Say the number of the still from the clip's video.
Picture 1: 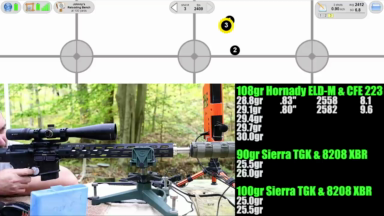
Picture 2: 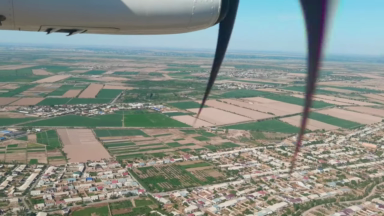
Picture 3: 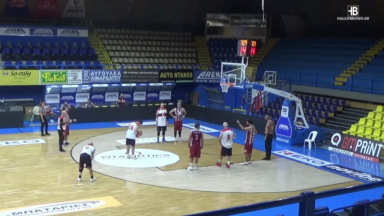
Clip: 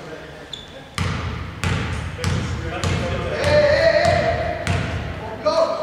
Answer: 3